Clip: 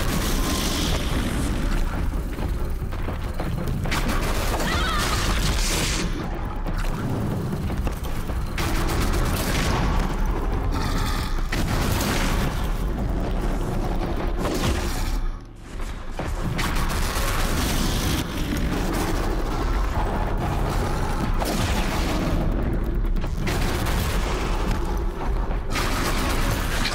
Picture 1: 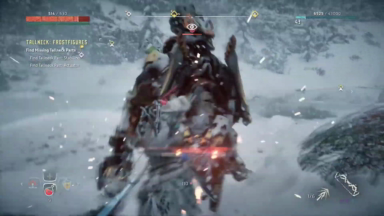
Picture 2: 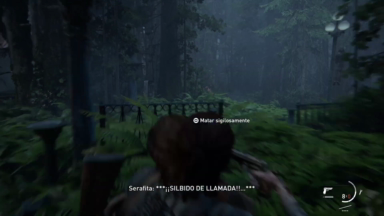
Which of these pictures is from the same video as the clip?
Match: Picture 1